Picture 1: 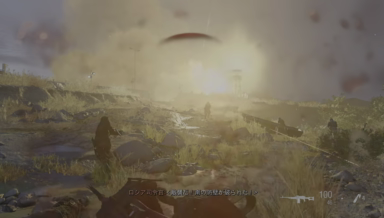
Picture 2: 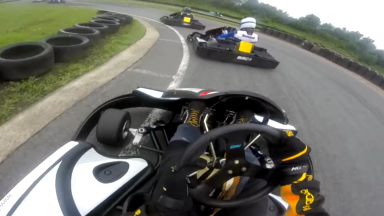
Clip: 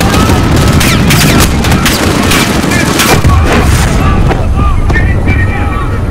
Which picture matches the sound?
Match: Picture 1